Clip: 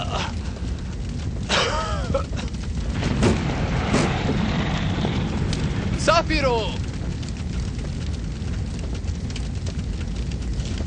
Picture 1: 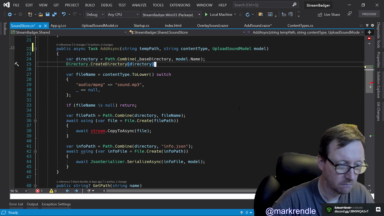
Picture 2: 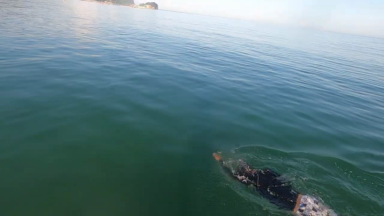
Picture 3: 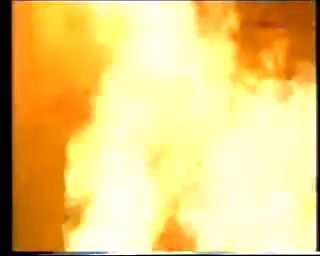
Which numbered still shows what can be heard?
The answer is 3